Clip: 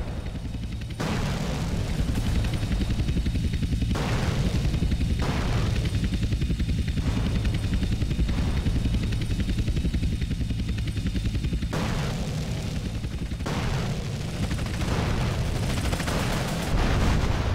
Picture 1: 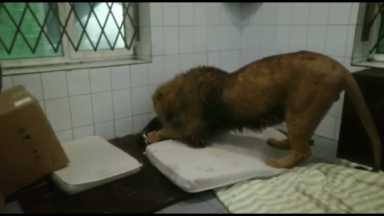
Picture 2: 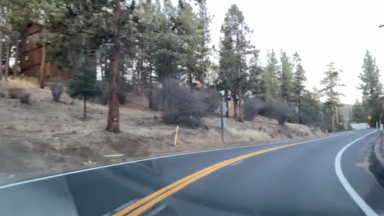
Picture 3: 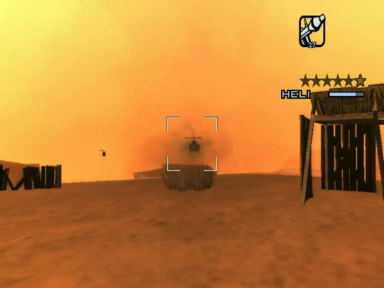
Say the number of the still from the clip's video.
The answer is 3